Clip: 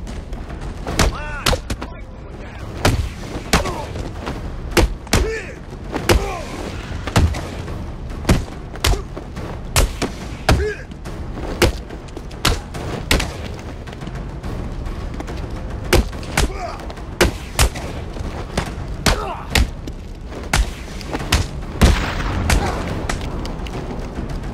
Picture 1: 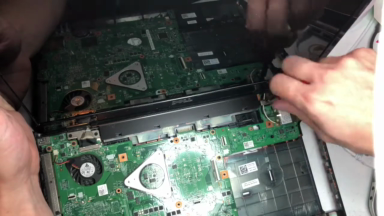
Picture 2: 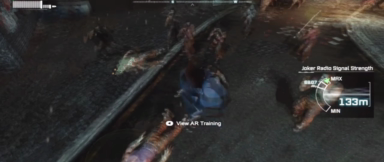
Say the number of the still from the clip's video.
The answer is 2